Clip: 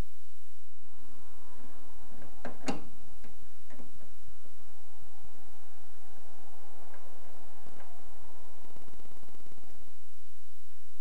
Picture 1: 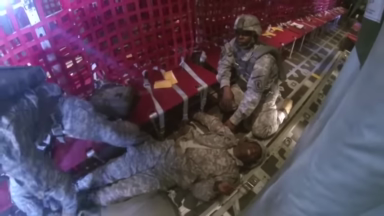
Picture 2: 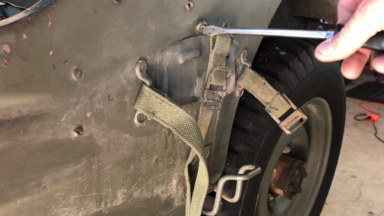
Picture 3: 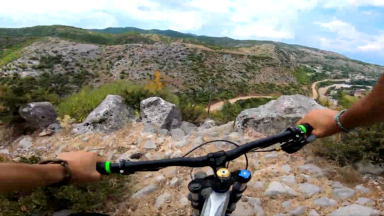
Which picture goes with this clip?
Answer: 2